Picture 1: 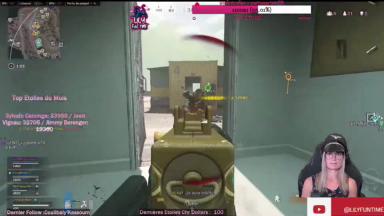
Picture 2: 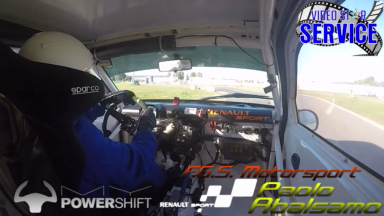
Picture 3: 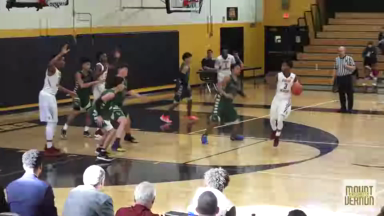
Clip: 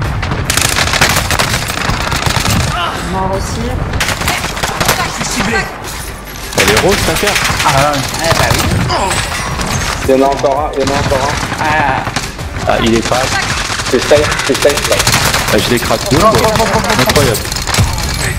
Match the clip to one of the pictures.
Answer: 1